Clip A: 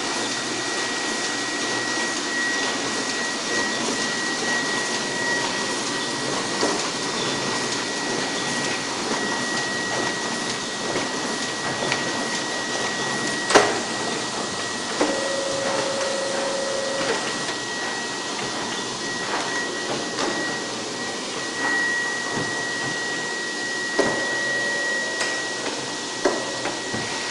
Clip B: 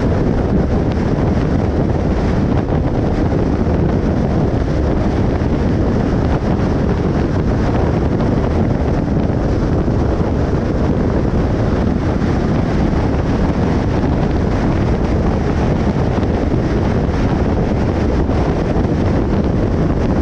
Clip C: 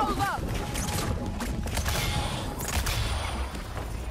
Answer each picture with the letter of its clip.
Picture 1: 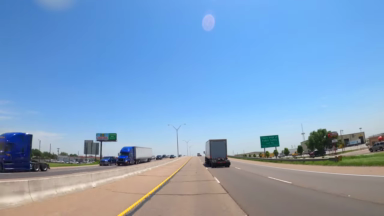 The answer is B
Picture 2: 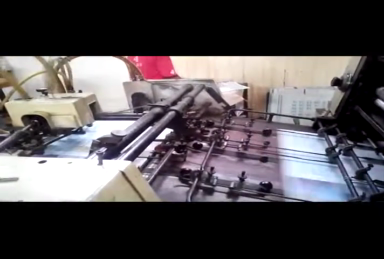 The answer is A